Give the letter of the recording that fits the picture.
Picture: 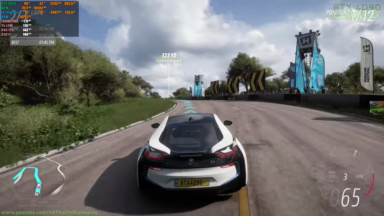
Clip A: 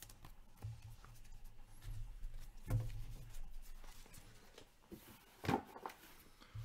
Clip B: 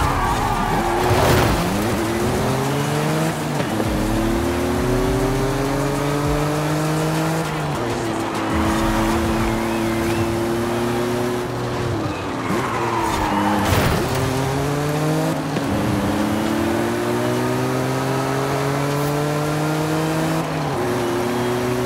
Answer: B